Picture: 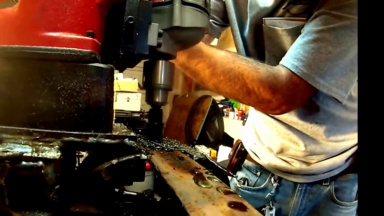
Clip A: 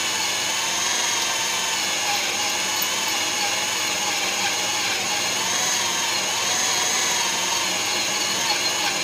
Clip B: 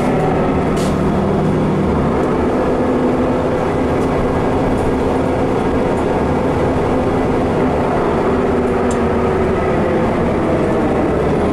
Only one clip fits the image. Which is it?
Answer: A